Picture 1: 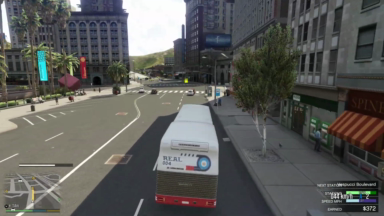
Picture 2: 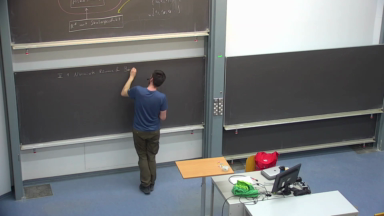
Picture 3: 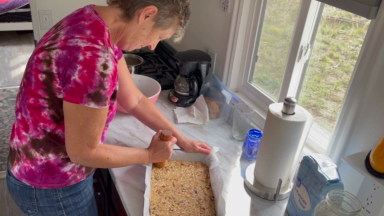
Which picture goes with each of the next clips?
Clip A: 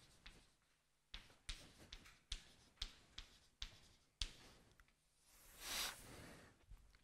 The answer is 2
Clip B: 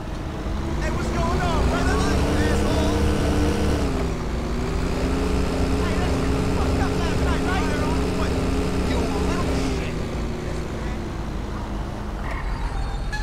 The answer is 1